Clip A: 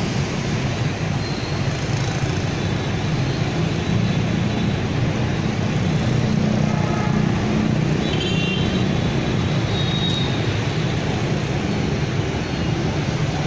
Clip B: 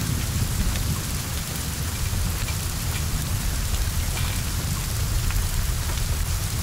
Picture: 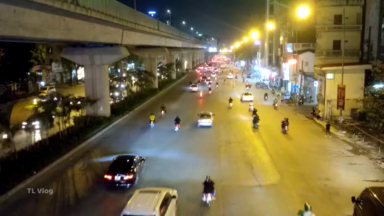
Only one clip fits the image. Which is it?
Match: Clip A